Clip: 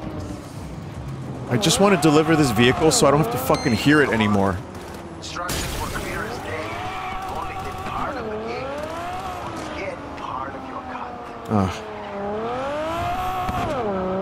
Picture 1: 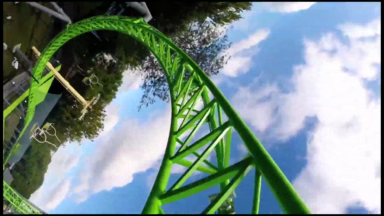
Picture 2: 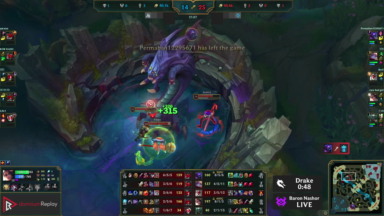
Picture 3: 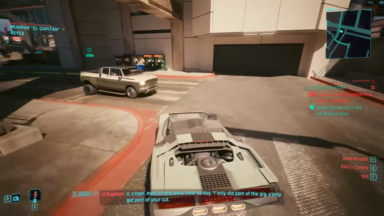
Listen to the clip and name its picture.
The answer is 3